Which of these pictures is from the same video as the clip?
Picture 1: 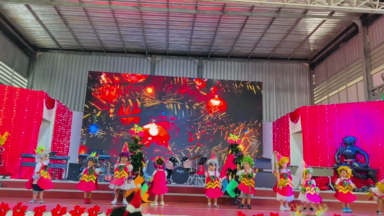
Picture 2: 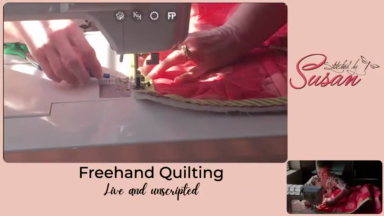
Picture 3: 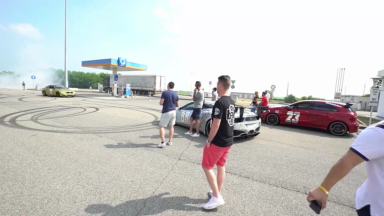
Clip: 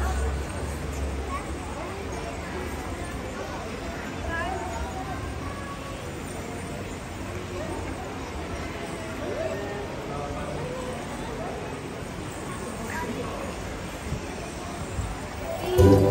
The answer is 1